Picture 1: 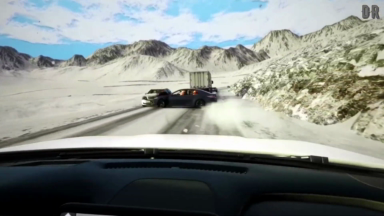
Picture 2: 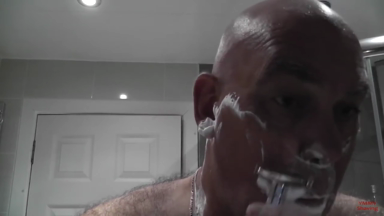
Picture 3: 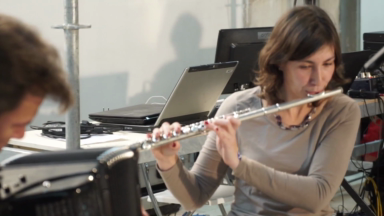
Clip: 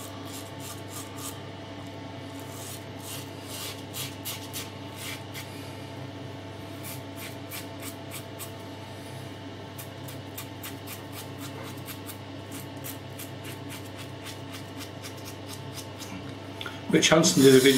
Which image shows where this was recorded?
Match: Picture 2